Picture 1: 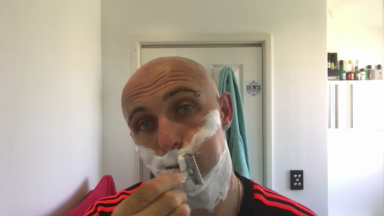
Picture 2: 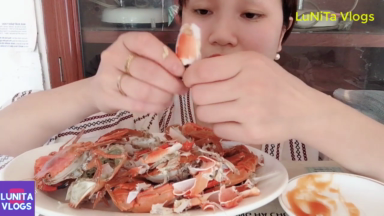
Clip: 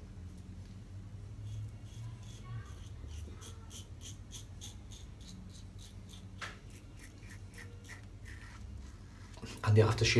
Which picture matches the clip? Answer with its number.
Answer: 1